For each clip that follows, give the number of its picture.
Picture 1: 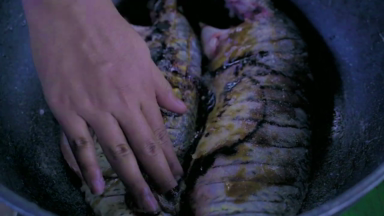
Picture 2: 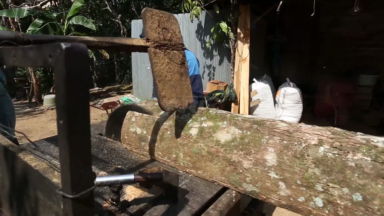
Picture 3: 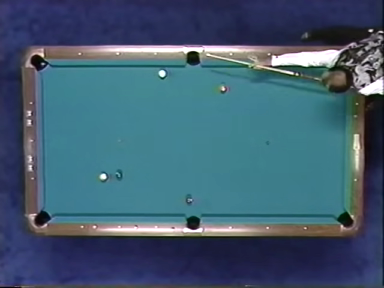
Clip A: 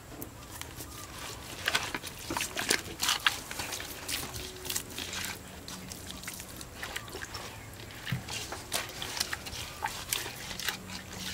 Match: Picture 1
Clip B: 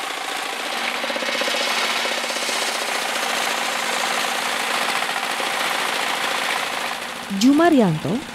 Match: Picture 2